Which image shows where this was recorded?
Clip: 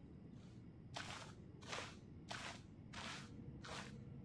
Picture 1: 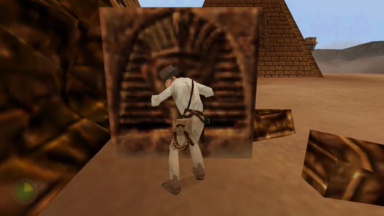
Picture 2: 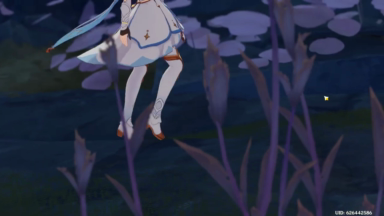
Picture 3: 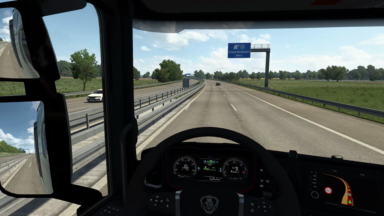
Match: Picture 2